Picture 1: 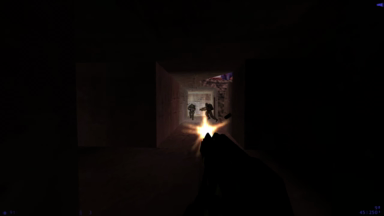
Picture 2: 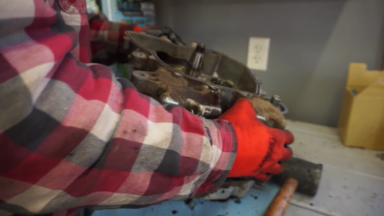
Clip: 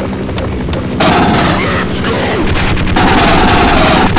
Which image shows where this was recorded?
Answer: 1